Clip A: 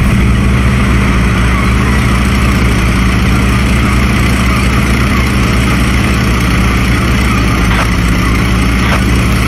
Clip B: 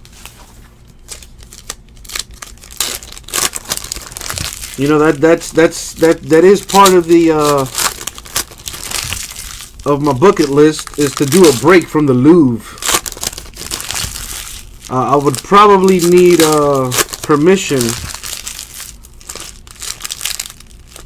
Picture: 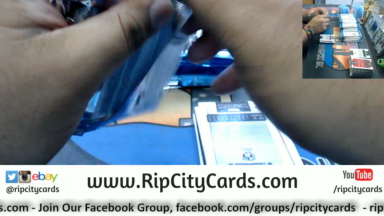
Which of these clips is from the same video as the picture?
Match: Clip B